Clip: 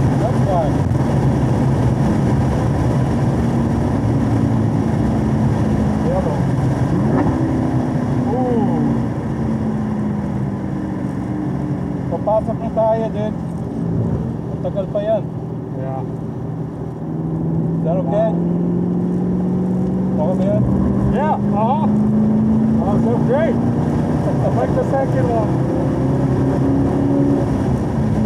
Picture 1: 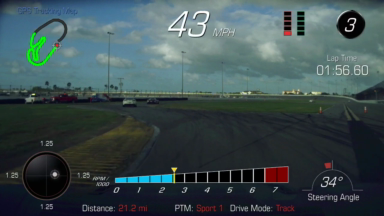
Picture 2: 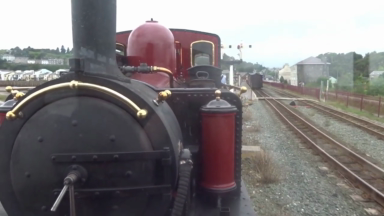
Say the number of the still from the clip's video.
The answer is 1